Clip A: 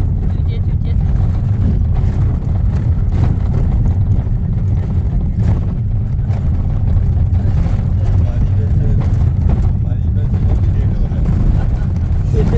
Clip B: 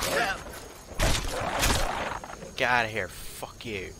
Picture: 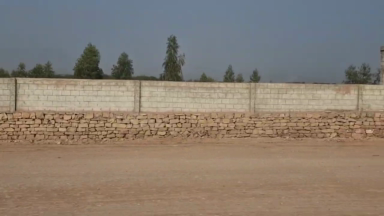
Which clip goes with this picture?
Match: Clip A